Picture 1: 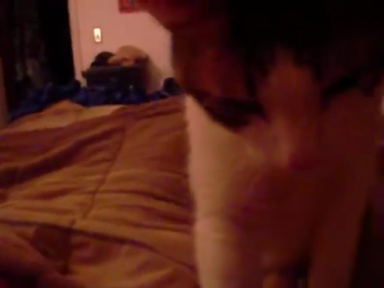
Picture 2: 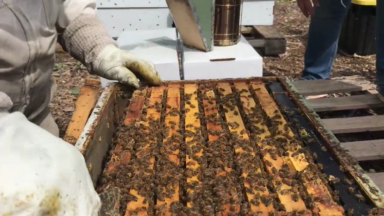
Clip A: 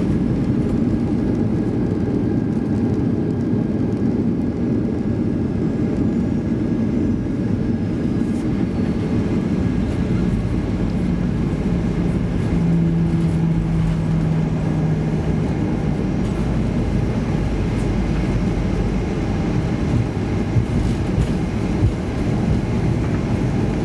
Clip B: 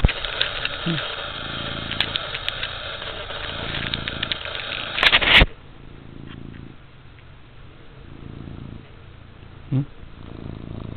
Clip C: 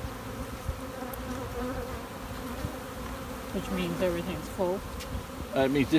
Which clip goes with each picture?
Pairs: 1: B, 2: C